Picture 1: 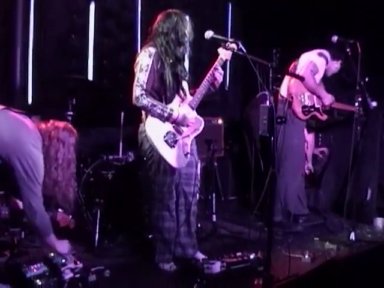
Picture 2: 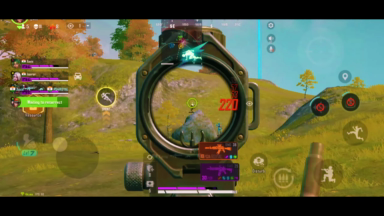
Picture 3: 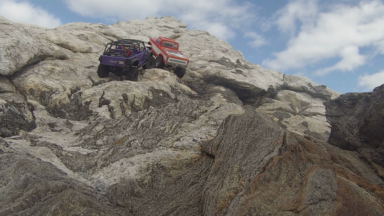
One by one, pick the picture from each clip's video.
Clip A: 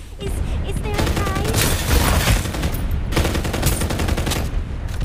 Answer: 2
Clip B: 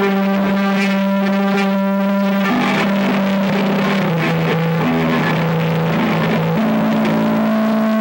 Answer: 1